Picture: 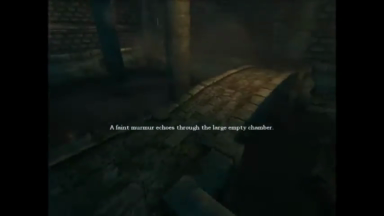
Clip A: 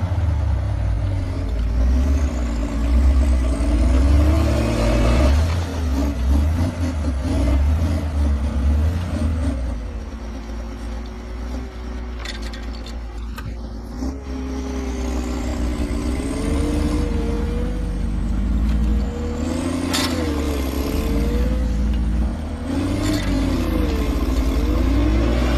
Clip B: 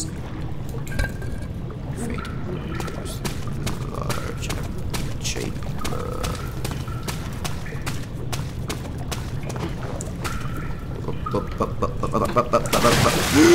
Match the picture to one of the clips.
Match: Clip B